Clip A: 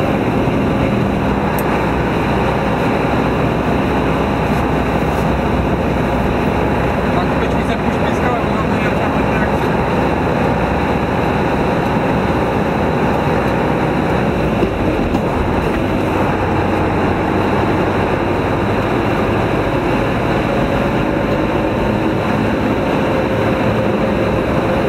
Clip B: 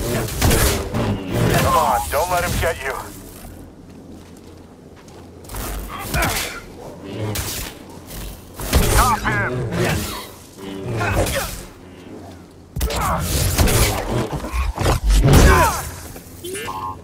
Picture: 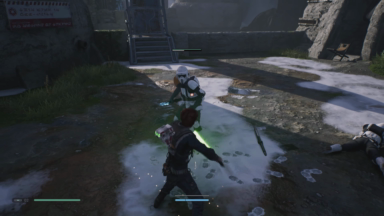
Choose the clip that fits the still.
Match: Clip B